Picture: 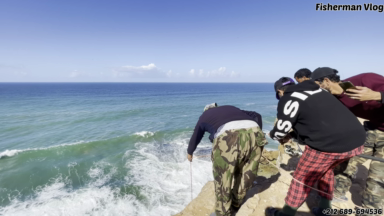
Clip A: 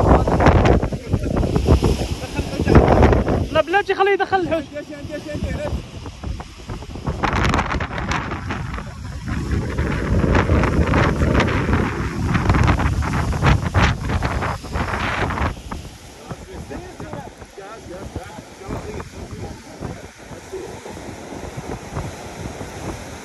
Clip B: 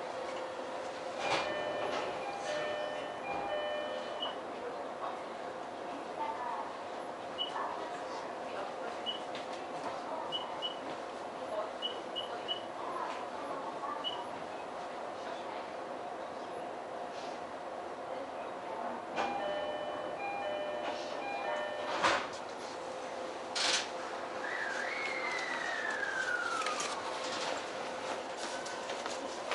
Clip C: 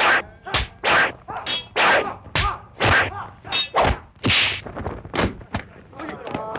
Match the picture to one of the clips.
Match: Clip A